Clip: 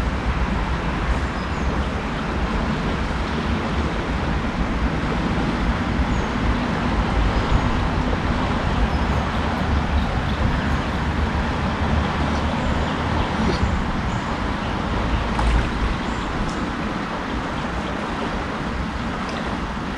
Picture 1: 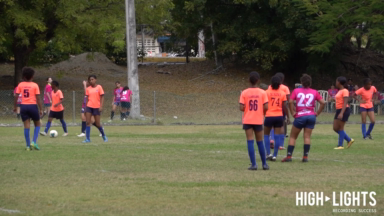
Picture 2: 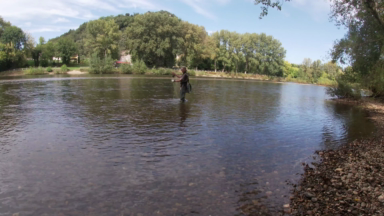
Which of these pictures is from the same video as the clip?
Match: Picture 2